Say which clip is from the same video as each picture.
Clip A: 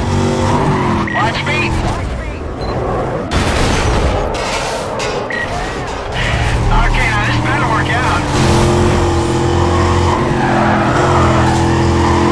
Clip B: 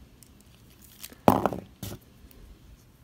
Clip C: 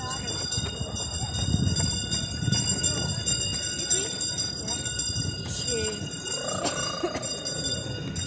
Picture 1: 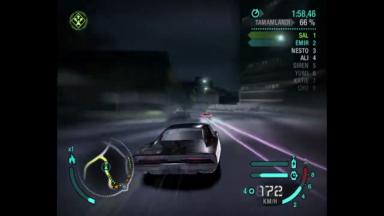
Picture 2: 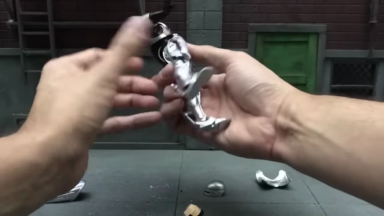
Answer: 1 A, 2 B